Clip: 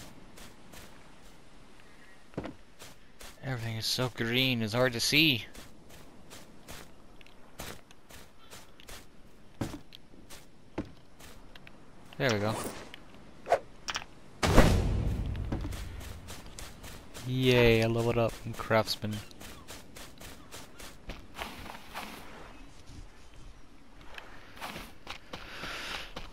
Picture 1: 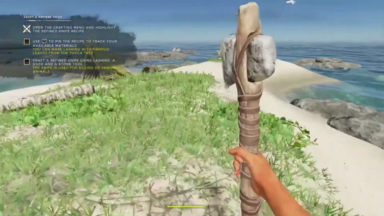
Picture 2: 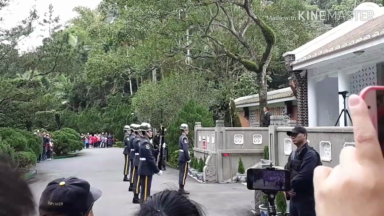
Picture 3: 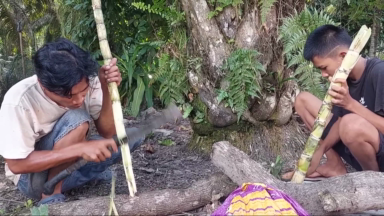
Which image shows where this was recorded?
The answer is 1